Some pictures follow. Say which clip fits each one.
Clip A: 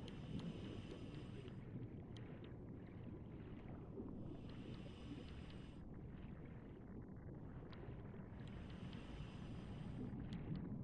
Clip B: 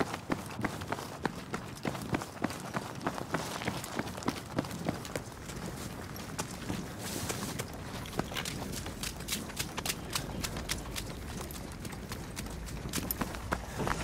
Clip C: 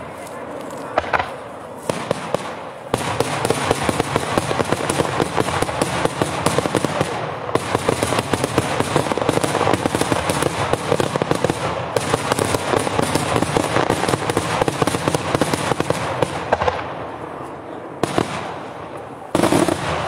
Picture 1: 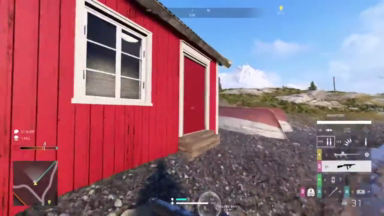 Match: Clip B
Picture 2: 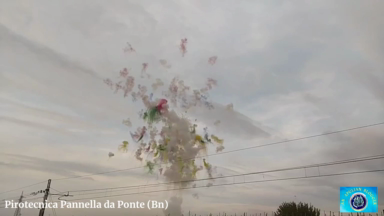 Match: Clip C